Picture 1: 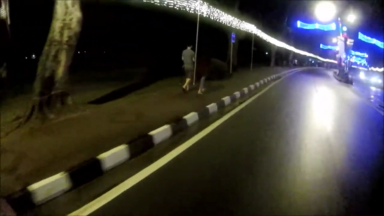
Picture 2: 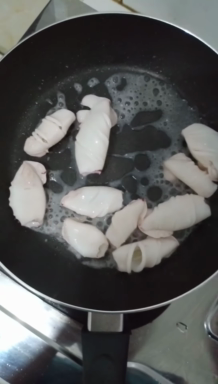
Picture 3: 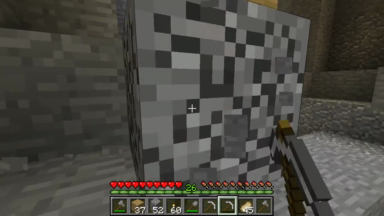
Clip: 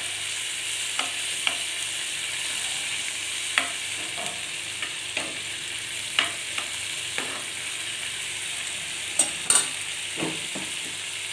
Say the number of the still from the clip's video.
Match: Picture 2